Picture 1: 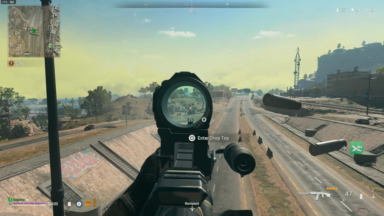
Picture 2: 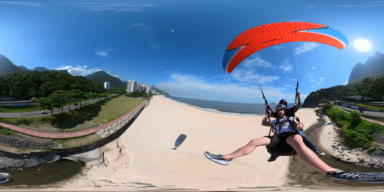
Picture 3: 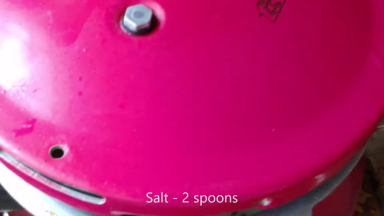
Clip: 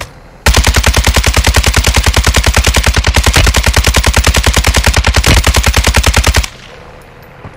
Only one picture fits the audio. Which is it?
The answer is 1